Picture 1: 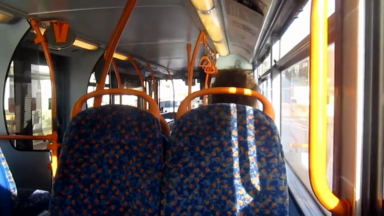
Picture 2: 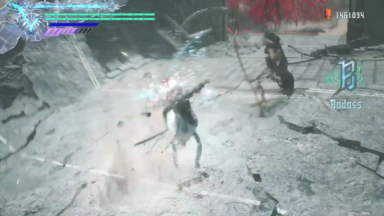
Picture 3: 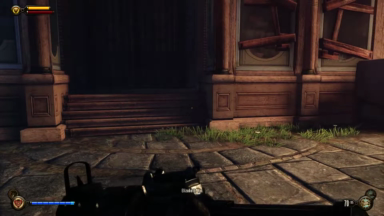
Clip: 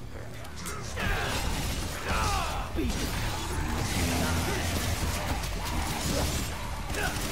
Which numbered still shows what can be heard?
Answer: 2